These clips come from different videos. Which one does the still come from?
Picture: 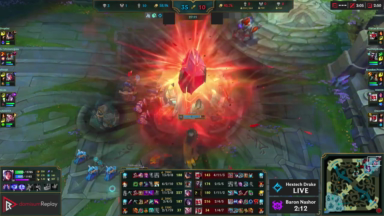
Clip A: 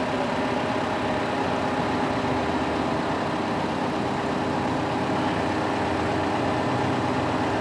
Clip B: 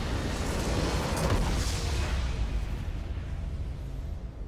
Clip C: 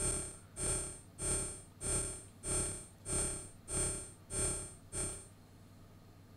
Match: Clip B